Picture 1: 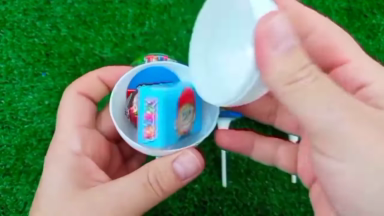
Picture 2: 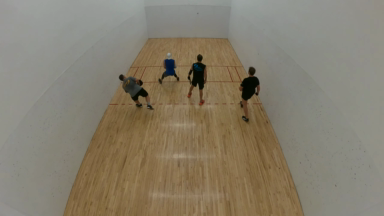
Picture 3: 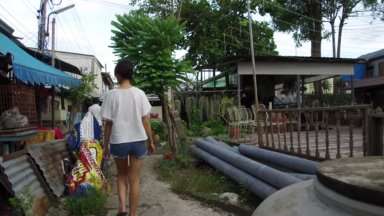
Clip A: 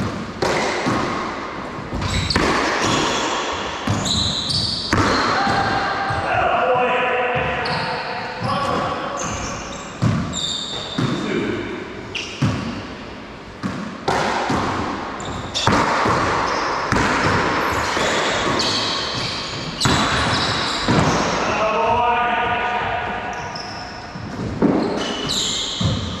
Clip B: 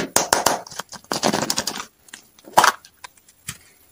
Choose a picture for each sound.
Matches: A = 2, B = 1